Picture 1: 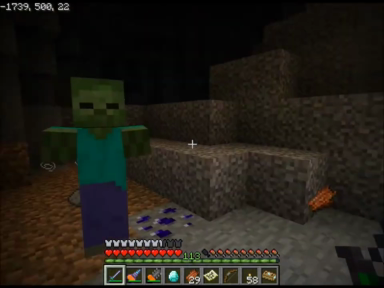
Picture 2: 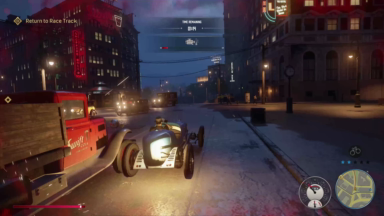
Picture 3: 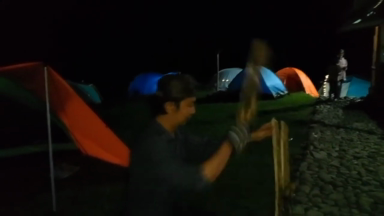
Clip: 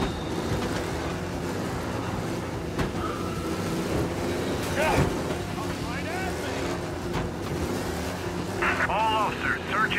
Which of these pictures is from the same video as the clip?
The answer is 2